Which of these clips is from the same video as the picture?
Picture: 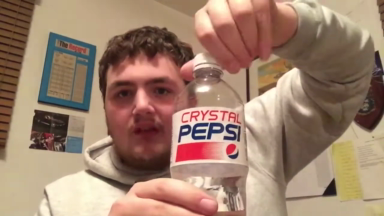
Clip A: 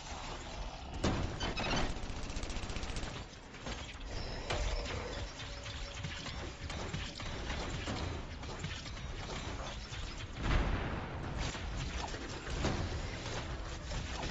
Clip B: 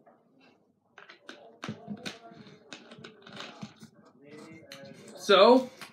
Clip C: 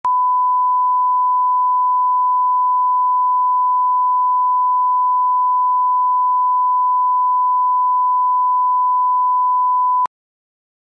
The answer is B